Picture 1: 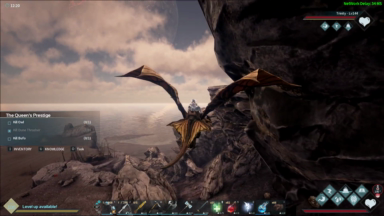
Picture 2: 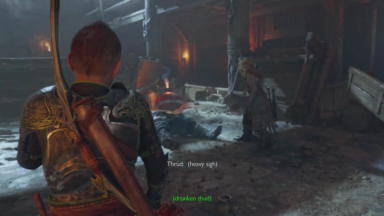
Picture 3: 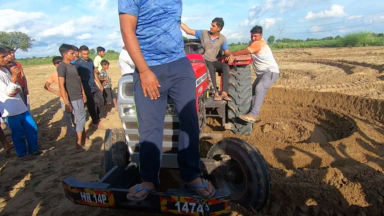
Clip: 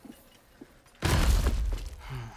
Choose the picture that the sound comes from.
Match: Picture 2